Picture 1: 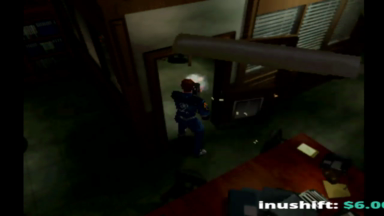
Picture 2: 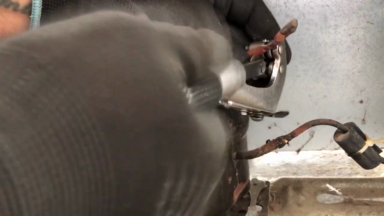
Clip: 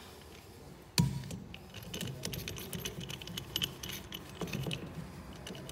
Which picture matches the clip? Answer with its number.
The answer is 2